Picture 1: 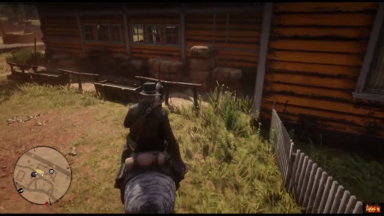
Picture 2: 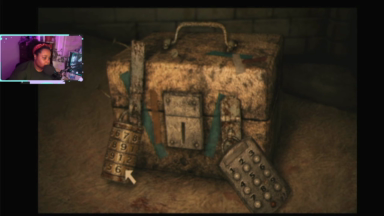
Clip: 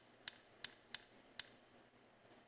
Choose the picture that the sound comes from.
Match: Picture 2